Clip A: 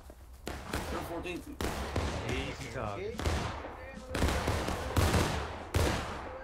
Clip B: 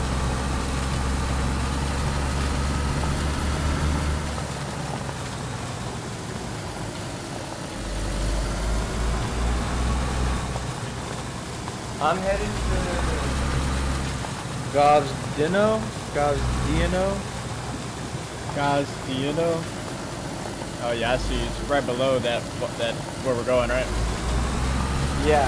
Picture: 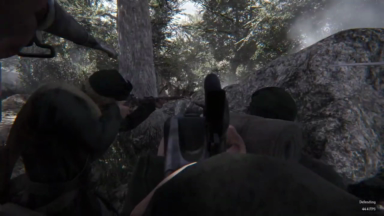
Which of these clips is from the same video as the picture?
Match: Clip A